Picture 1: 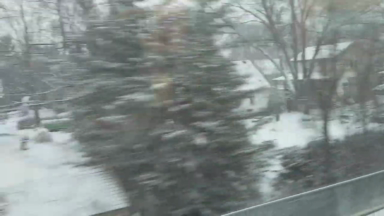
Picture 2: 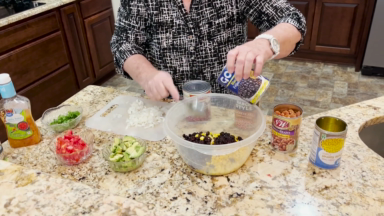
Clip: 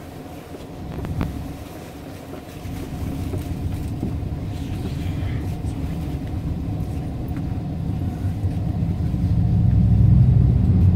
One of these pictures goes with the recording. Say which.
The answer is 1